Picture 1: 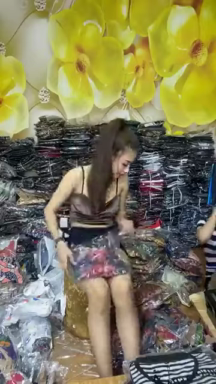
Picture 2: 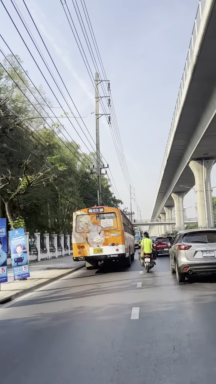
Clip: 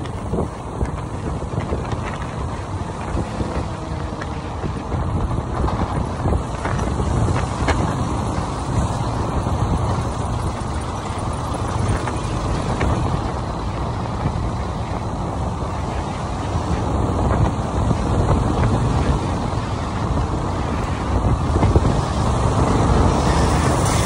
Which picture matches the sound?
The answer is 2